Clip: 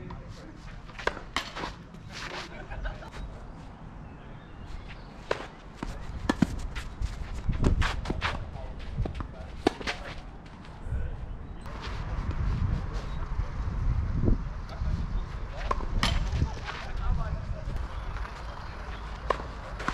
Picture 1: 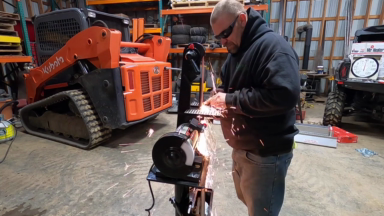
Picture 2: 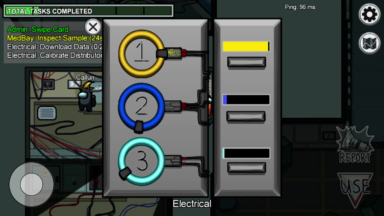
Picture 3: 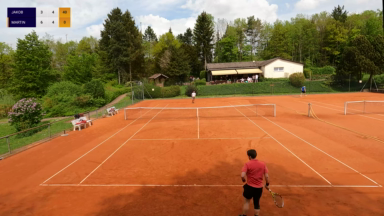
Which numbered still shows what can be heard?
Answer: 3